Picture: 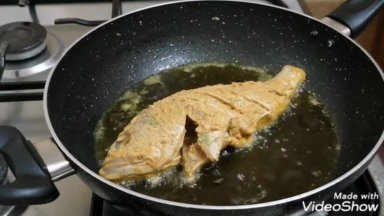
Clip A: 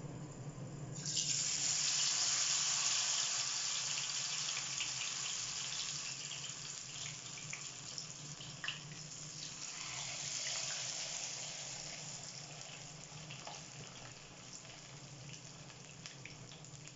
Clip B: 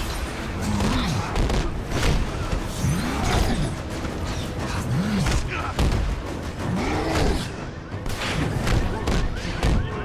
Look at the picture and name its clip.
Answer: A